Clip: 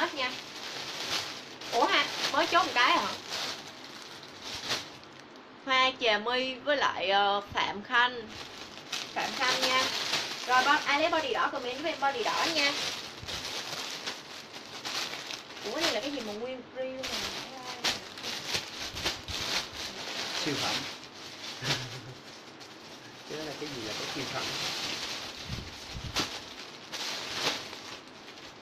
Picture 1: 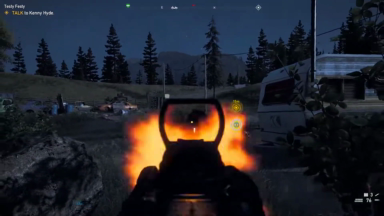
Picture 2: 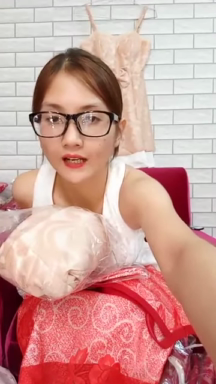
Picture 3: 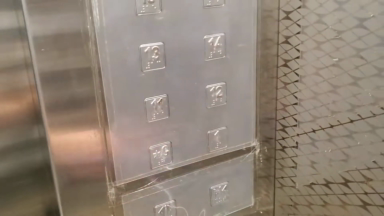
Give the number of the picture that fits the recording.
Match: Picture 2